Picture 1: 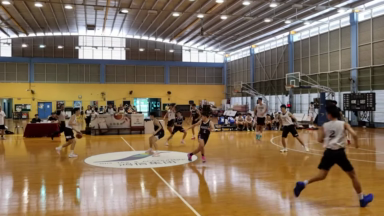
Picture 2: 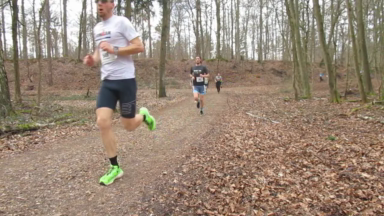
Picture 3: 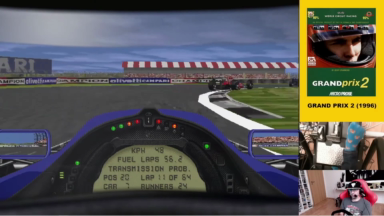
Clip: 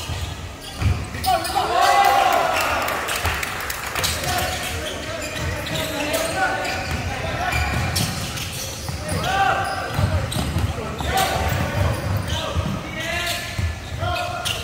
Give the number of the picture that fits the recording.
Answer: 1